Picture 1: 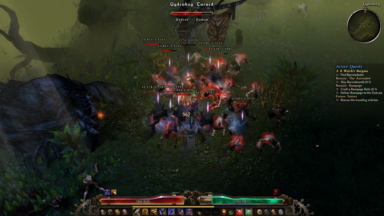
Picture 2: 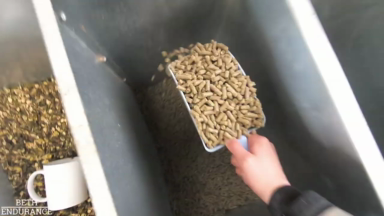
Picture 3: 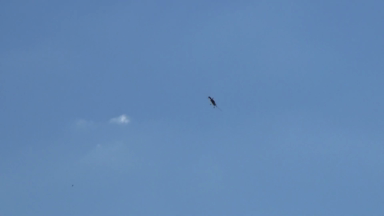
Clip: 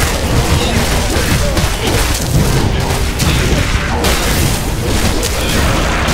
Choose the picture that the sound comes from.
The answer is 1